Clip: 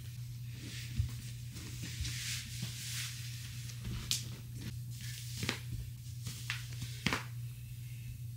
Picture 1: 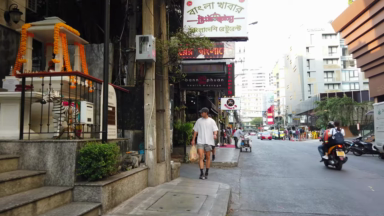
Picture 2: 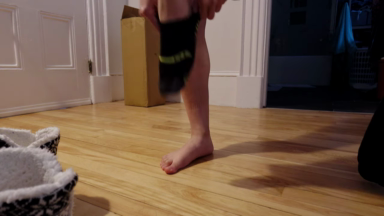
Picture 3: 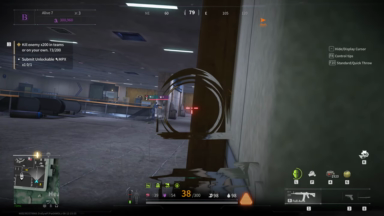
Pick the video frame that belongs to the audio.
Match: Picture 2